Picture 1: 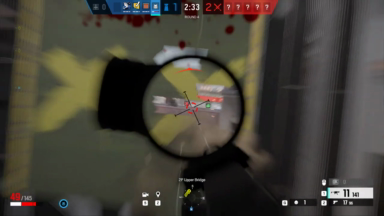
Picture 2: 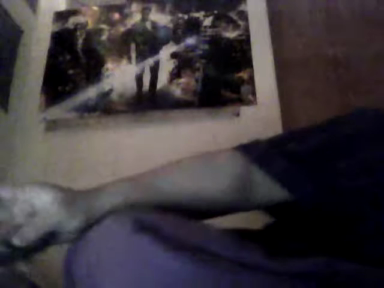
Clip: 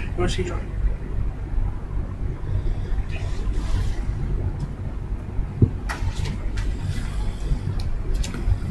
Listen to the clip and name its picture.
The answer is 2